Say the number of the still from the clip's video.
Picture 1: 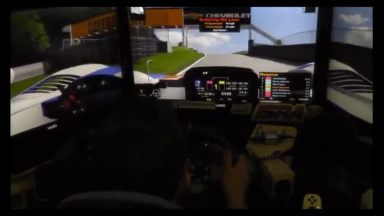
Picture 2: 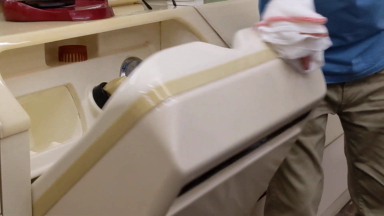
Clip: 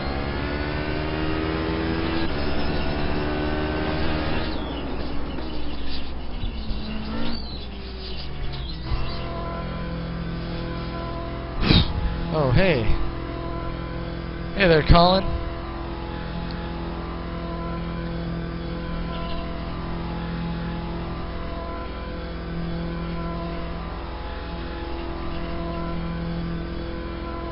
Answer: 1